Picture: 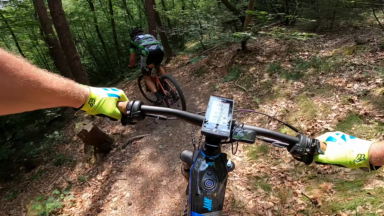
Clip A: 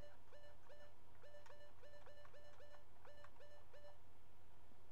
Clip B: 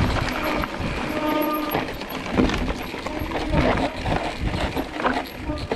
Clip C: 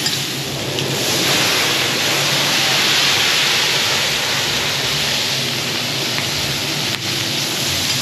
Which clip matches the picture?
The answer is B